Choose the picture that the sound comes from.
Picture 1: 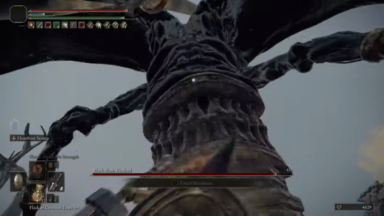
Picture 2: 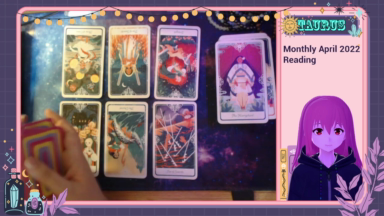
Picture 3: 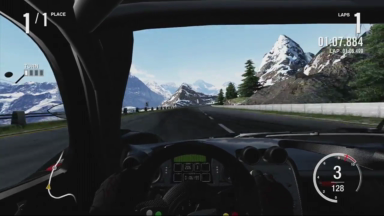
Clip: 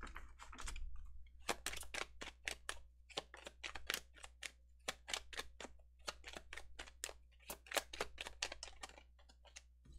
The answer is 2